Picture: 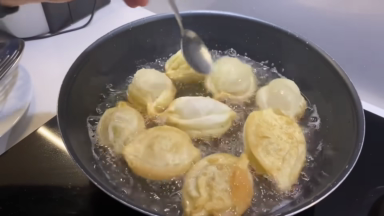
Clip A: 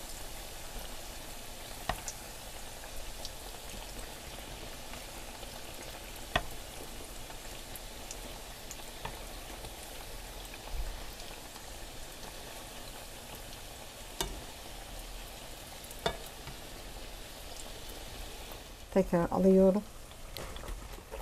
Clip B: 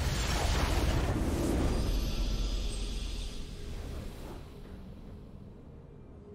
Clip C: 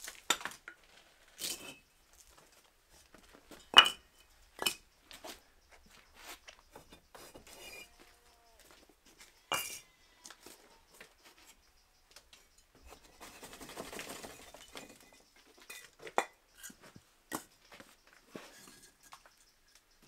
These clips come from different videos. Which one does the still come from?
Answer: A